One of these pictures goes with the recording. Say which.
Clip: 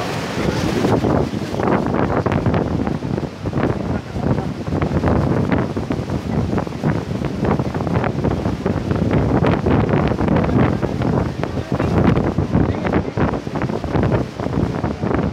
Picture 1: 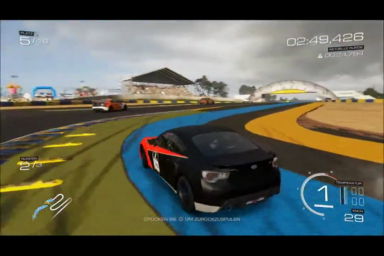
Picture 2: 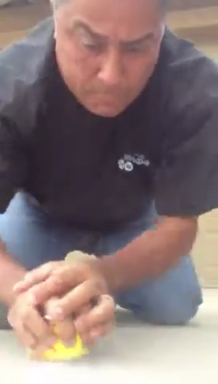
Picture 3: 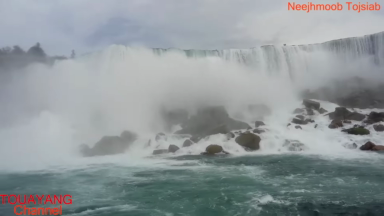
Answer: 3